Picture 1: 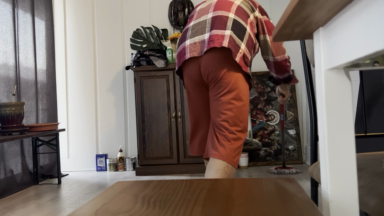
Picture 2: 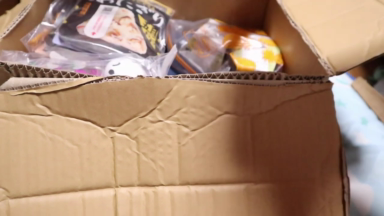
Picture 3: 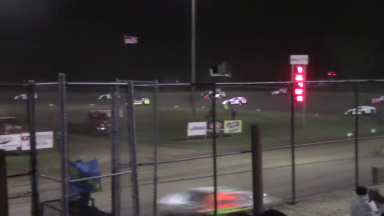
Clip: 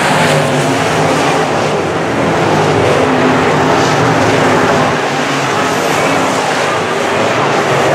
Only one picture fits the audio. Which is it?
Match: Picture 3